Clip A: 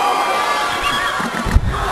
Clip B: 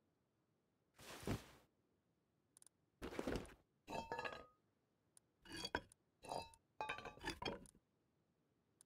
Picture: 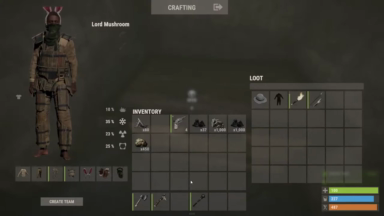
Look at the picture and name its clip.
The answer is B